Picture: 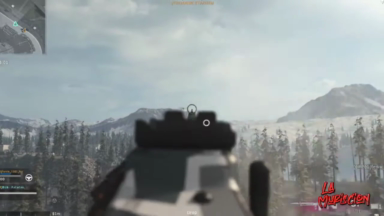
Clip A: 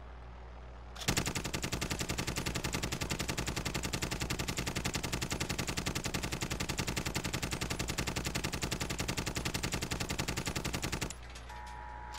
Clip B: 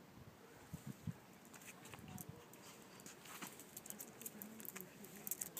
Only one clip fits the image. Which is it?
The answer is A